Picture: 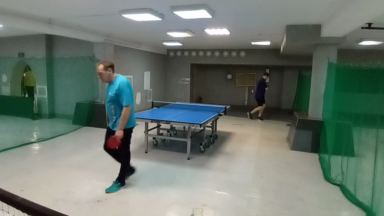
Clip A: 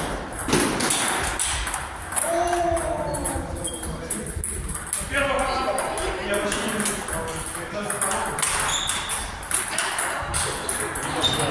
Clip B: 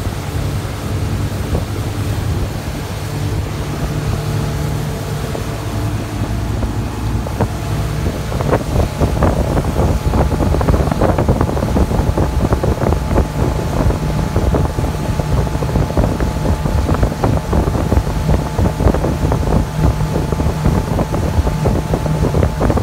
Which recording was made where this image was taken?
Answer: A